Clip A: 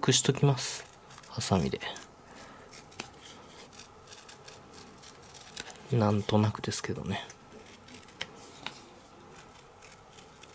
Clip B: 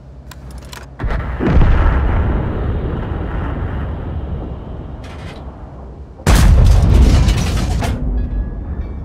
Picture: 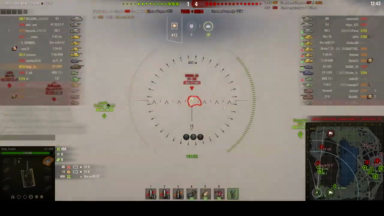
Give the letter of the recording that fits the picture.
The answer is B